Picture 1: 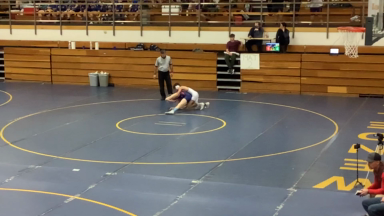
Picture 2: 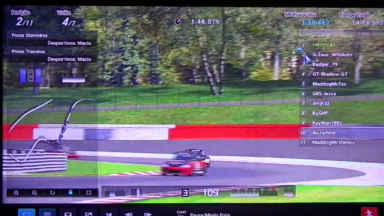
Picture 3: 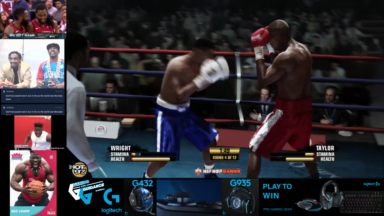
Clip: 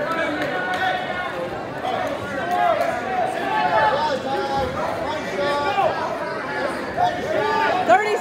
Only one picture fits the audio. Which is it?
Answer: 1